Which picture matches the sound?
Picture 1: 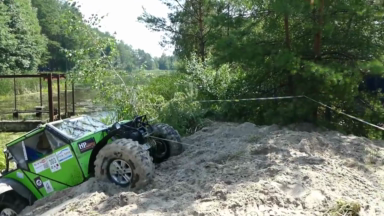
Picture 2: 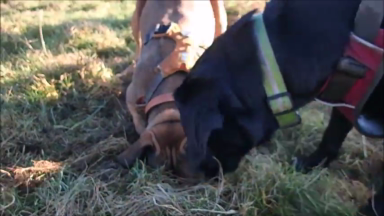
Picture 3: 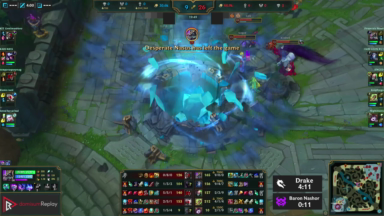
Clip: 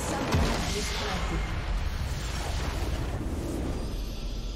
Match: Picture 3